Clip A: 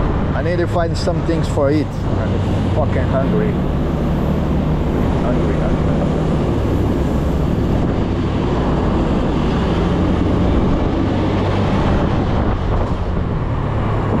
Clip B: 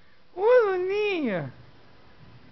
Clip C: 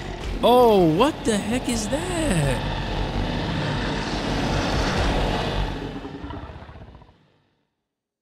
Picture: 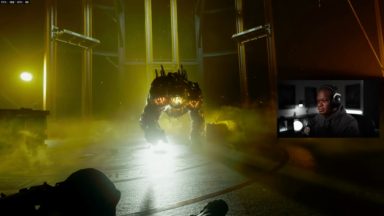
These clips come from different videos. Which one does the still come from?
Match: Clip C